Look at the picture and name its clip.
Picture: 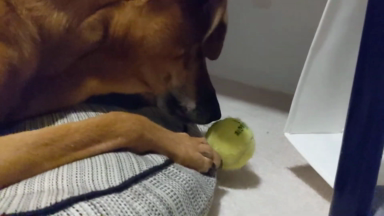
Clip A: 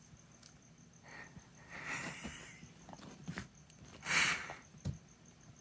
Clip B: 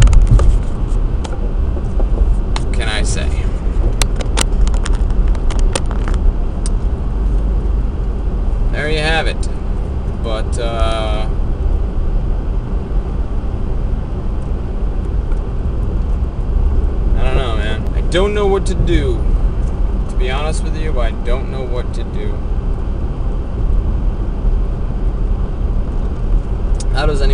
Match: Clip A